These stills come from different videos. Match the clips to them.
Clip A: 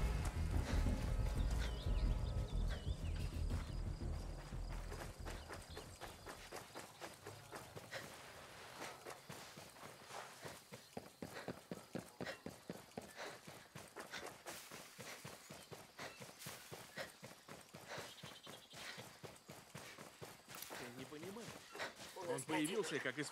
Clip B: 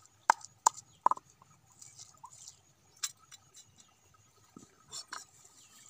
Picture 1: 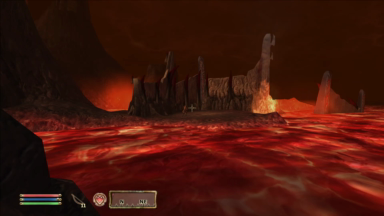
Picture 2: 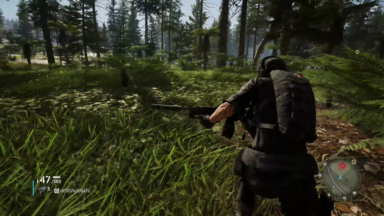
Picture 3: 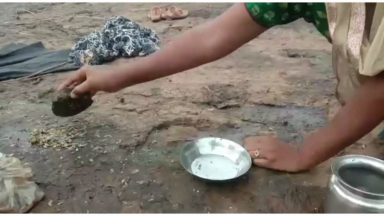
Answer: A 2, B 3